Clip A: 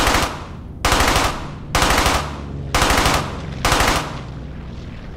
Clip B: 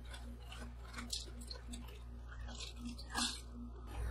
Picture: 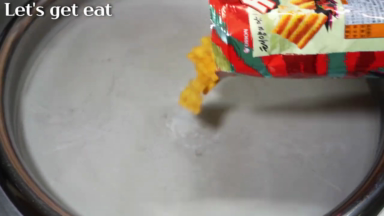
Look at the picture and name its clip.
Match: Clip B